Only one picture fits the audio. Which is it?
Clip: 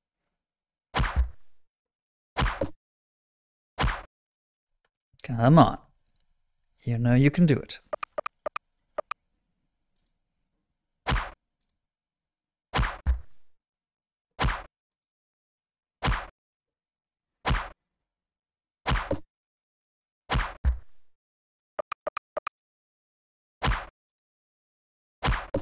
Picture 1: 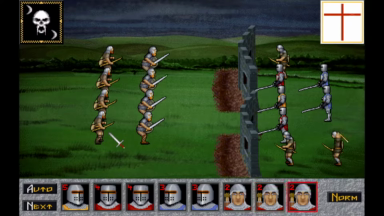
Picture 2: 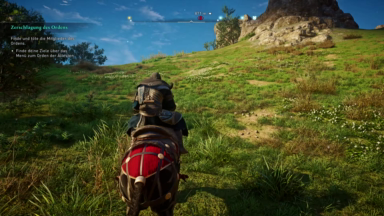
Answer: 1